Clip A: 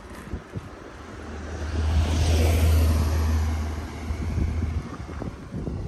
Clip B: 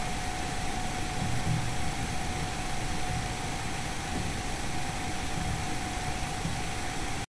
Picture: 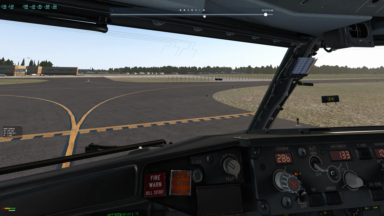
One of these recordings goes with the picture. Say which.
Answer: B